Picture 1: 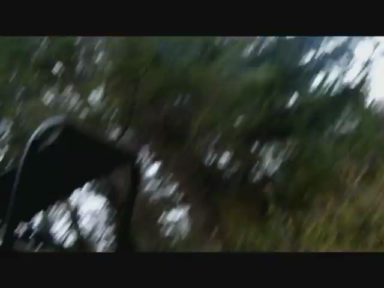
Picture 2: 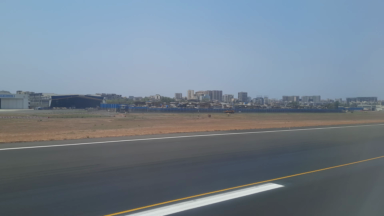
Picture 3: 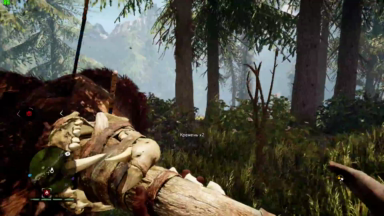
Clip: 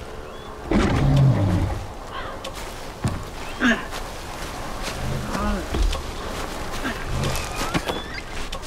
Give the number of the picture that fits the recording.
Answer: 3